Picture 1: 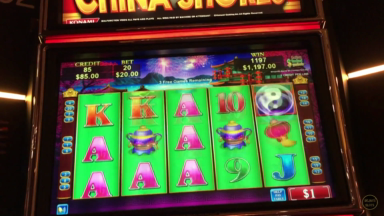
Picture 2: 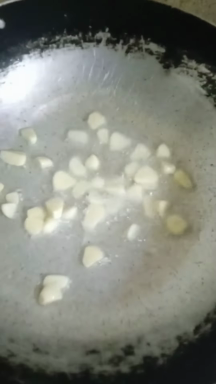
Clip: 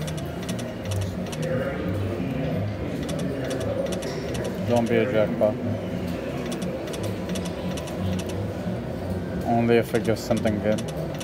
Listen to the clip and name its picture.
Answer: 1